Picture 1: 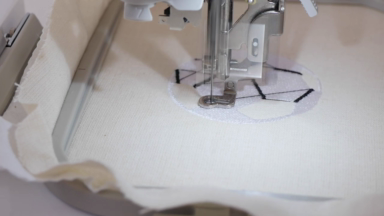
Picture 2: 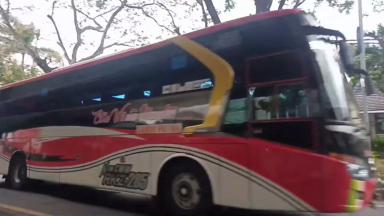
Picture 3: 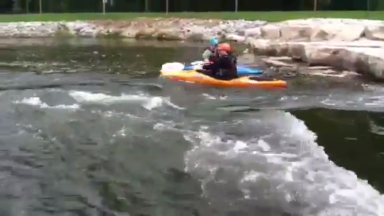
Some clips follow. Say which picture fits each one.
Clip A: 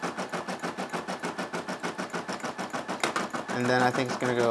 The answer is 1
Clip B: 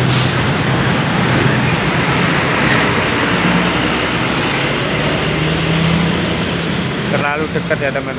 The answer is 2